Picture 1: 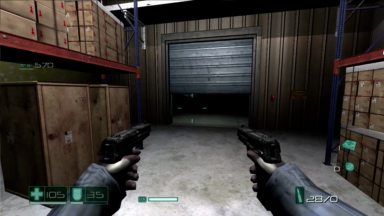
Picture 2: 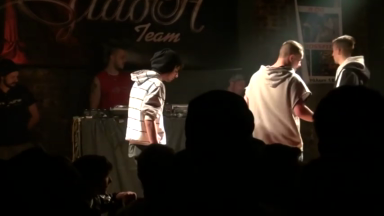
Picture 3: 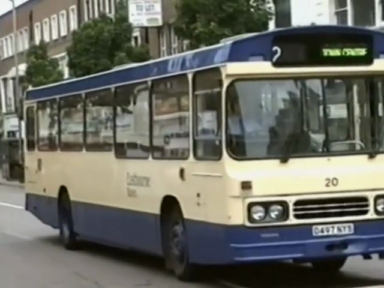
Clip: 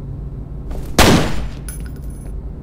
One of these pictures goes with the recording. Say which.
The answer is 1